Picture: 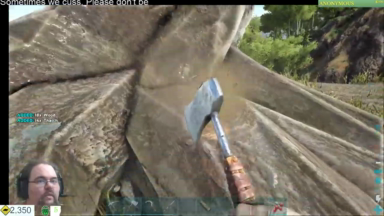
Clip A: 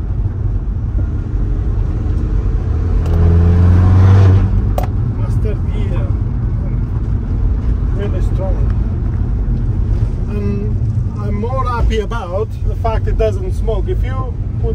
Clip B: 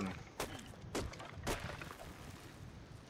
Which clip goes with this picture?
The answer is B